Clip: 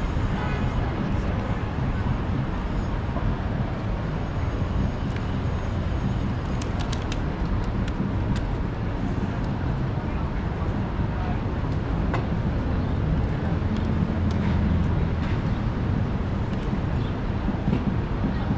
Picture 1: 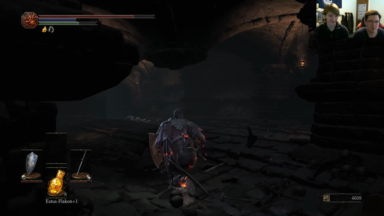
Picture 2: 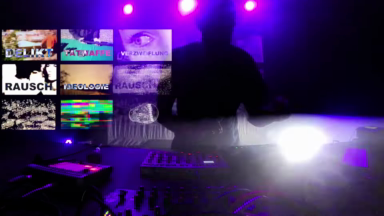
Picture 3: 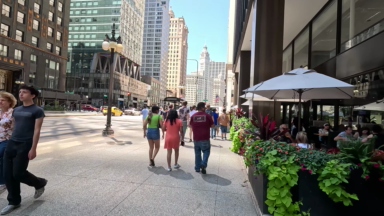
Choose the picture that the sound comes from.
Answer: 3